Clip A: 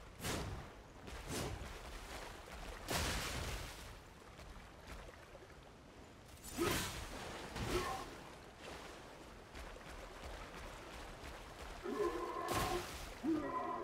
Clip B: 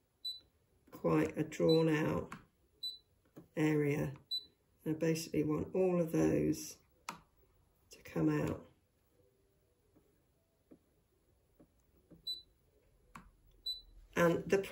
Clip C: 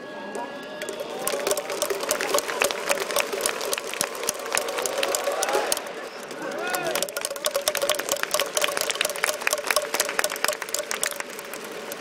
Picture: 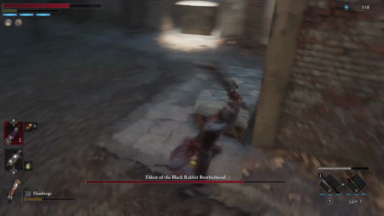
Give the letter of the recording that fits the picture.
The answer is A